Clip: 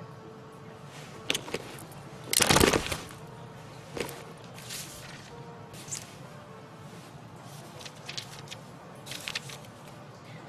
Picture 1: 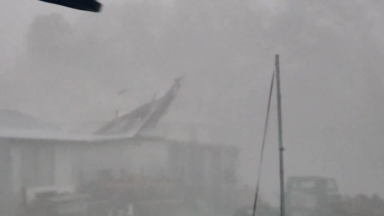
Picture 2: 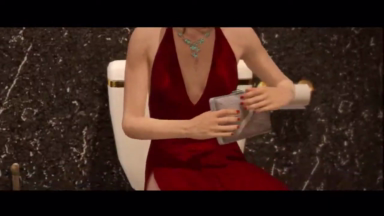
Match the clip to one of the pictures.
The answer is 2